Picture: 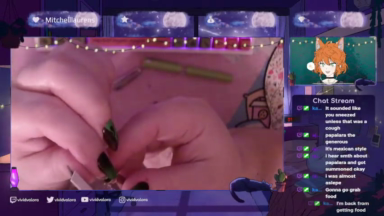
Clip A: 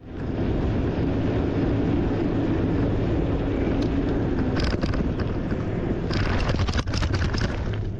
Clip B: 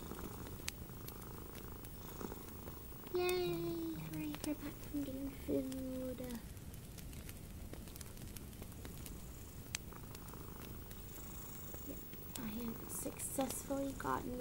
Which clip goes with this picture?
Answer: B